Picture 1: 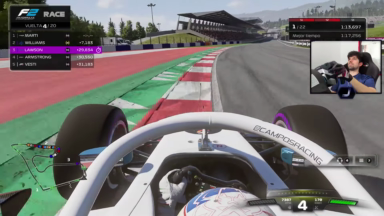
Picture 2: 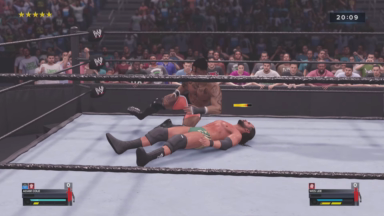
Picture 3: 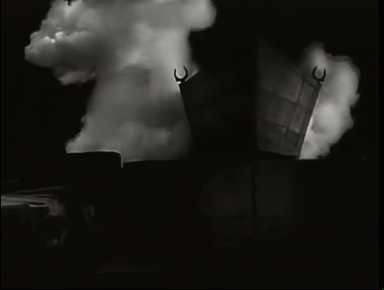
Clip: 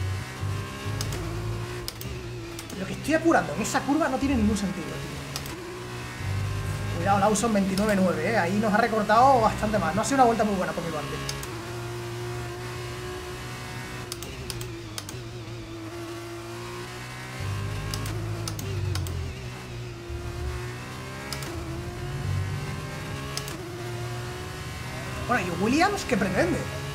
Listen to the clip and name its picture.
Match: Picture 1